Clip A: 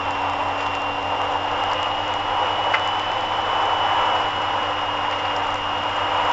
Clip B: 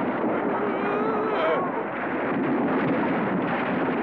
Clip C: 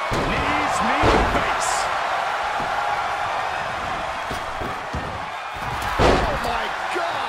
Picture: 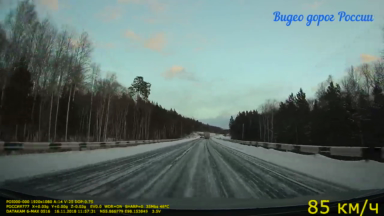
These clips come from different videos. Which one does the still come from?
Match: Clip A